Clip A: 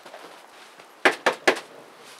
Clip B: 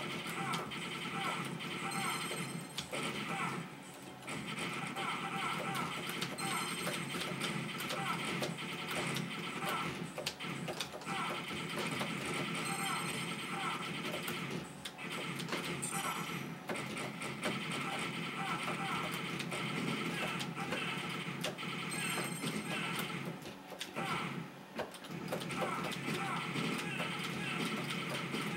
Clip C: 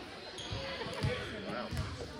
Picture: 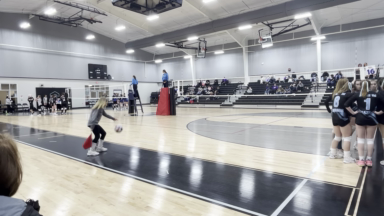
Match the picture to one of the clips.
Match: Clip C